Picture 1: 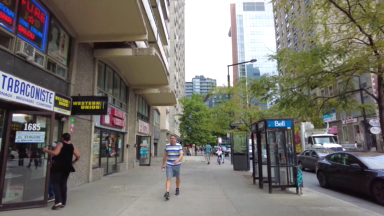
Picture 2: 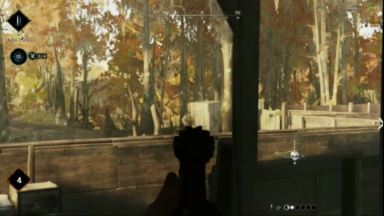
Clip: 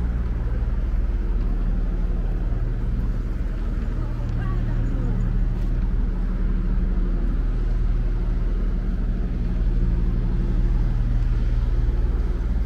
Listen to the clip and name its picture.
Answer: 1